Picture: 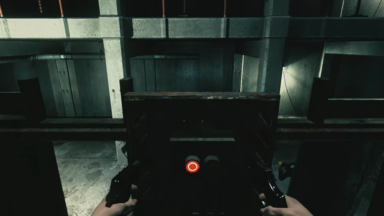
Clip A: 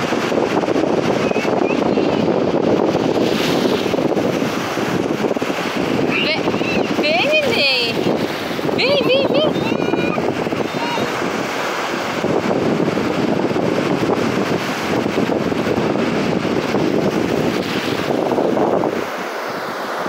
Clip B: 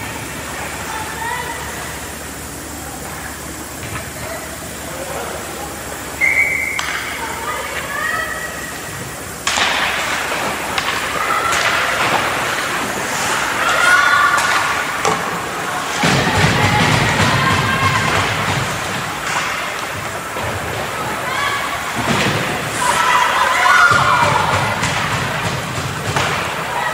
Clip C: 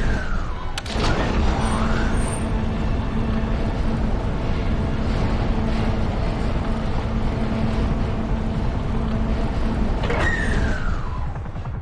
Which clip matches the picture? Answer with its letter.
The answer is C